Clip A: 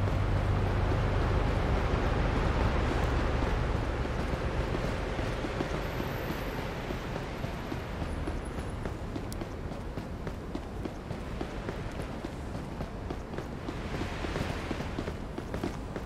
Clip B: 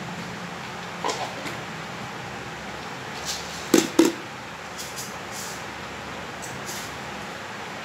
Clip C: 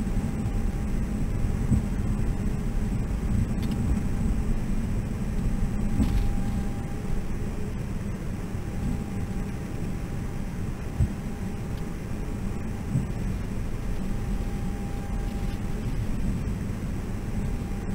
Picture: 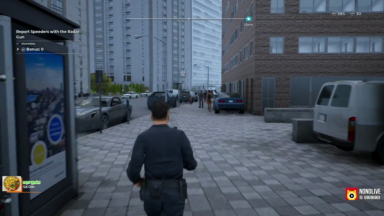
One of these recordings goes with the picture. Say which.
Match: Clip A